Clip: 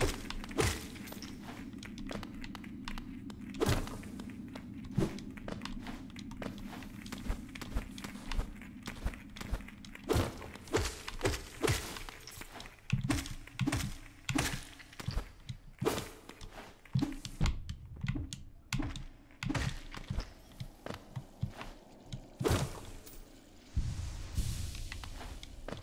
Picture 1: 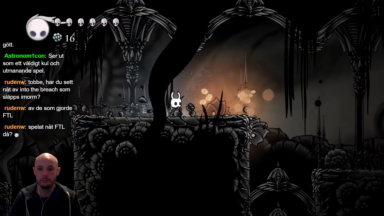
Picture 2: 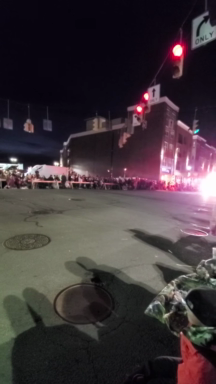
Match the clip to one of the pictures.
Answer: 1